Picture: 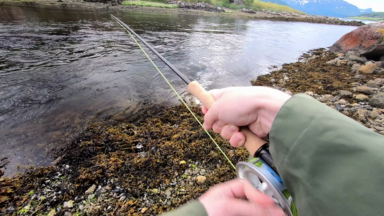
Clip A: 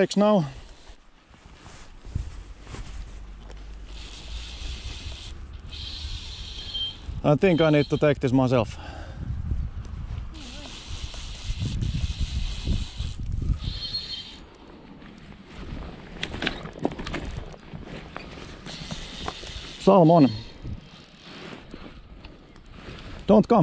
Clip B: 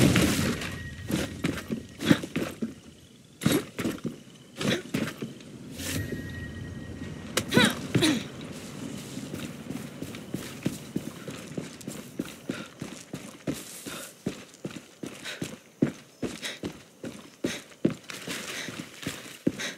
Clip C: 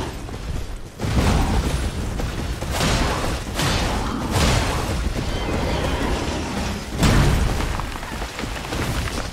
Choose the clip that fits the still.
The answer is A